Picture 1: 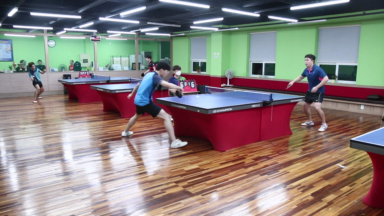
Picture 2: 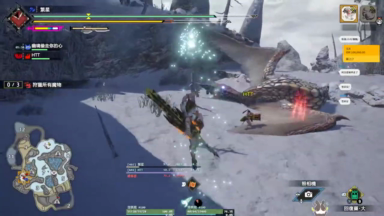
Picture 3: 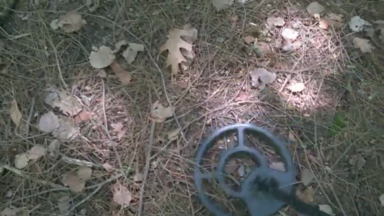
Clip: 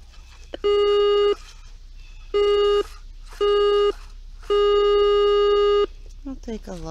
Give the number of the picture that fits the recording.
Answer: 3